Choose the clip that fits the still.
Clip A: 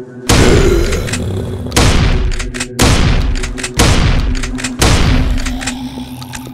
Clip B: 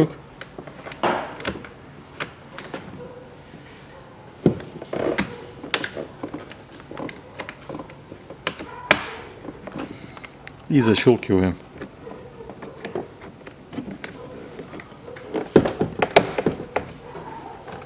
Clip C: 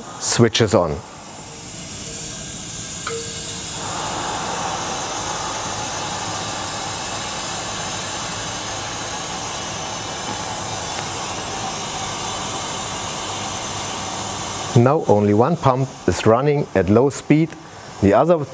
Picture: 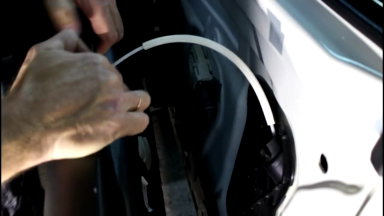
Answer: B